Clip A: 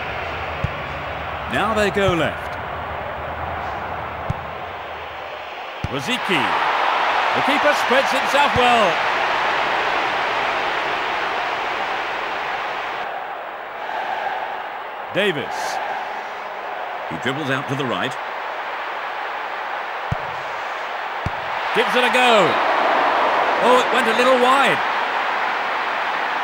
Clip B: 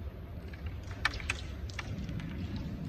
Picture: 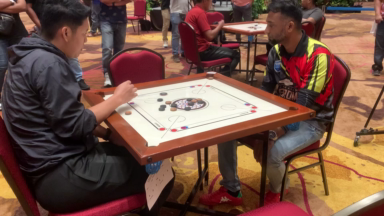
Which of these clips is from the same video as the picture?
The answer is B